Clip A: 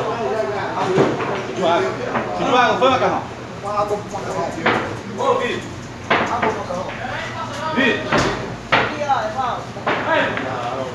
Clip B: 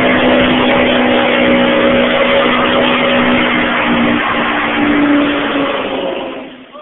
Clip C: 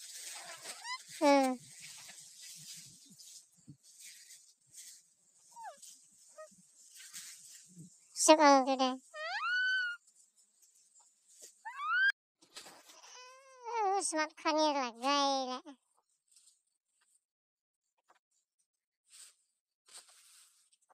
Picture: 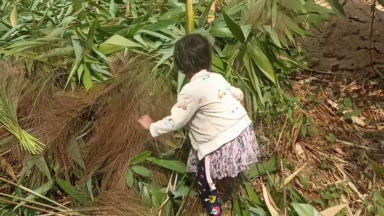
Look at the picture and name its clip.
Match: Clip C